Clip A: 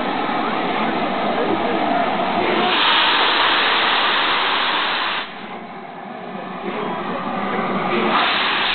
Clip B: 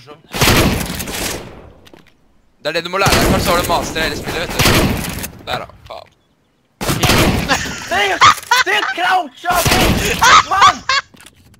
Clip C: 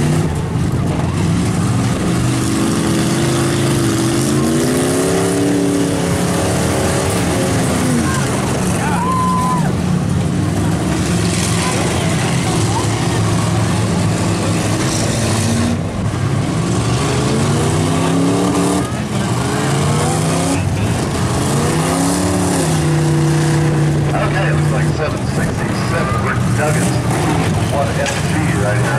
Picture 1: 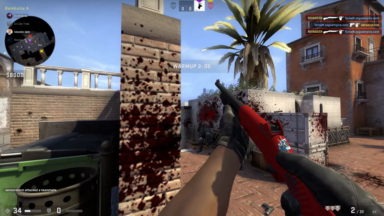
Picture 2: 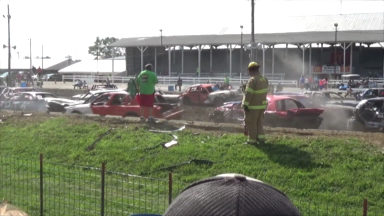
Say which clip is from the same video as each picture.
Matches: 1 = B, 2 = C